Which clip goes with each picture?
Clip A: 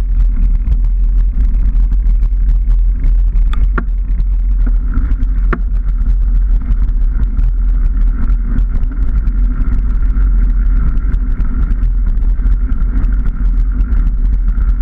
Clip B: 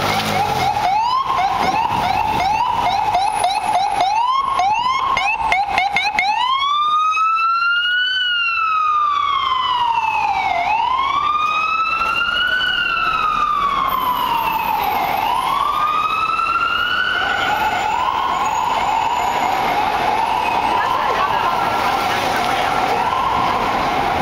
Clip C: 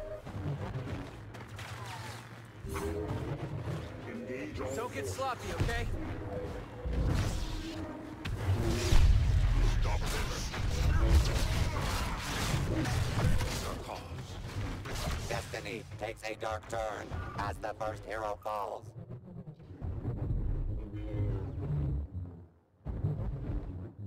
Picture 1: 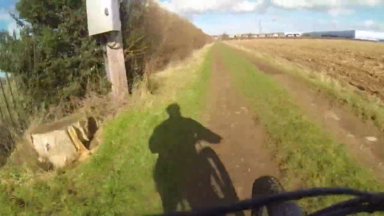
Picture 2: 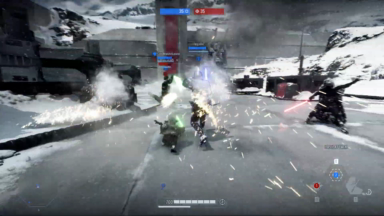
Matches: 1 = A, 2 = C